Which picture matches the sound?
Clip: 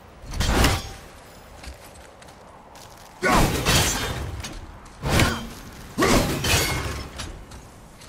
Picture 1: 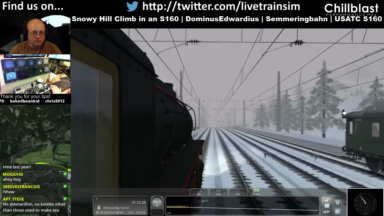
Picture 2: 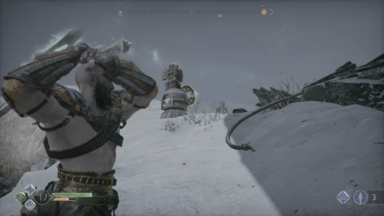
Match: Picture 2